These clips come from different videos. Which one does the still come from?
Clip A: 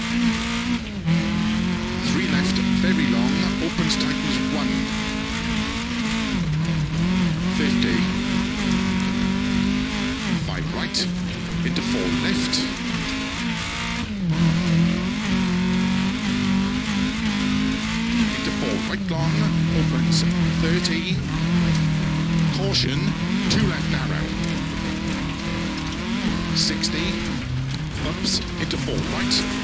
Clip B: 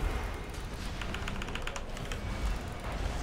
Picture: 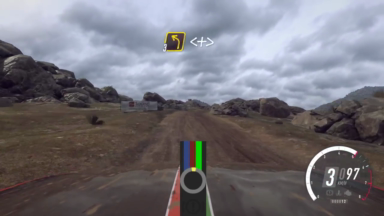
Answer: A